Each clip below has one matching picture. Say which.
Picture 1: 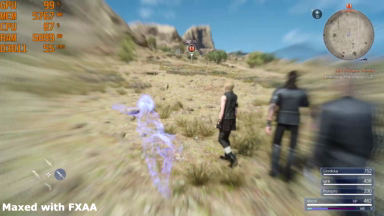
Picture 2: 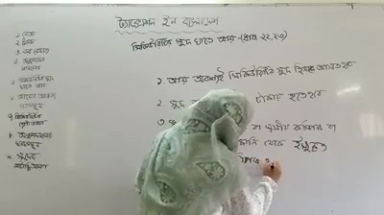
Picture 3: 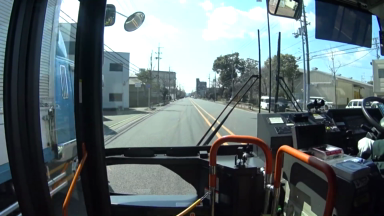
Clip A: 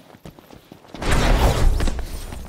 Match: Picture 1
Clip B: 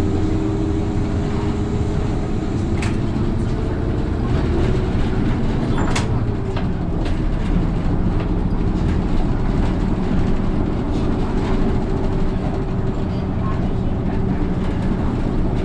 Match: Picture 3